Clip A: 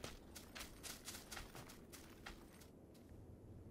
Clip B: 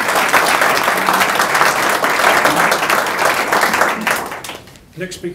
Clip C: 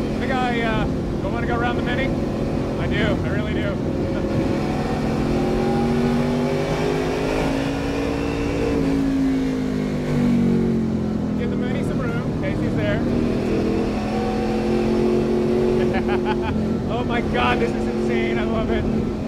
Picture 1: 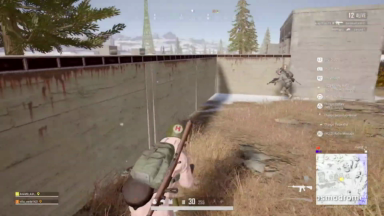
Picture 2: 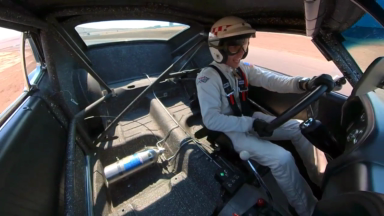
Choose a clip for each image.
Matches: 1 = A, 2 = C